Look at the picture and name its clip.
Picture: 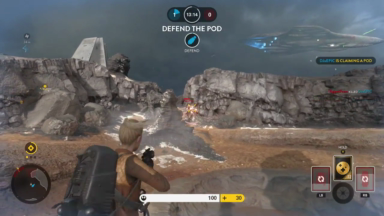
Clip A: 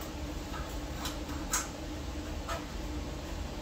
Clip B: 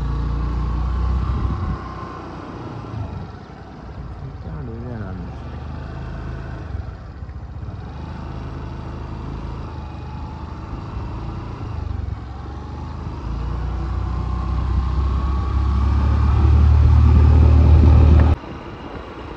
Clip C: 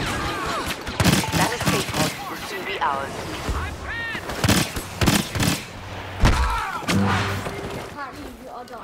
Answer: C